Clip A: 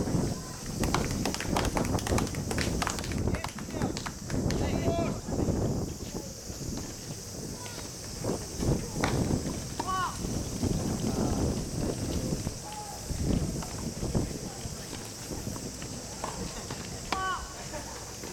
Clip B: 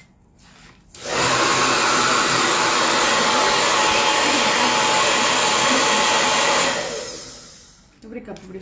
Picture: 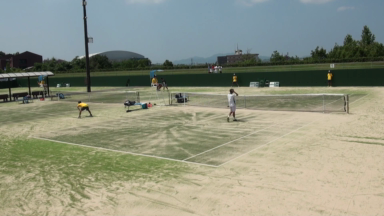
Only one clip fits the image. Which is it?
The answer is A